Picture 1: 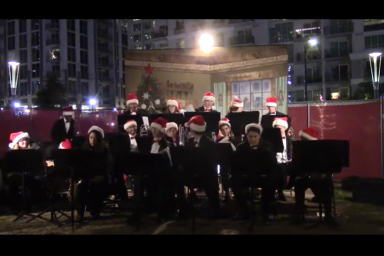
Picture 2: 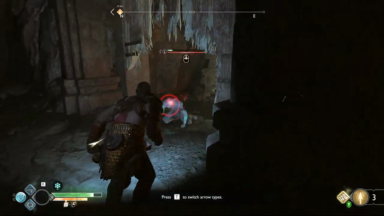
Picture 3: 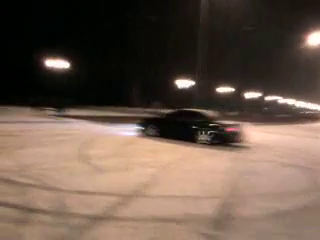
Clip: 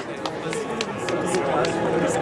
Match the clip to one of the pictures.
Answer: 1